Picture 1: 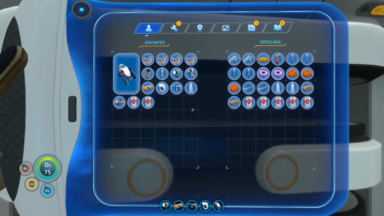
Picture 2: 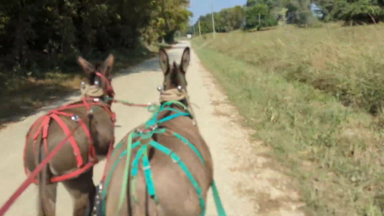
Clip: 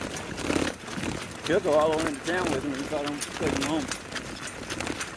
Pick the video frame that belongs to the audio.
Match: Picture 2